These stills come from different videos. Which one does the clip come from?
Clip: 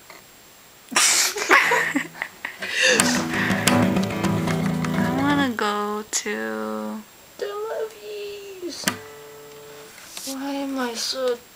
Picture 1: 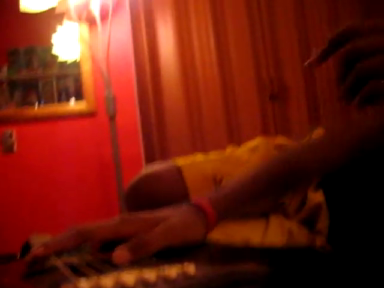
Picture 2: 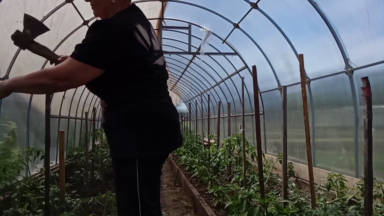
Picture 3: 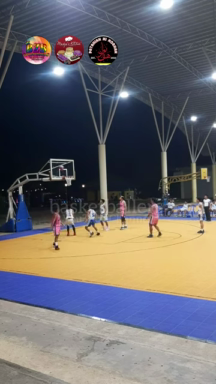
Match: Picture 1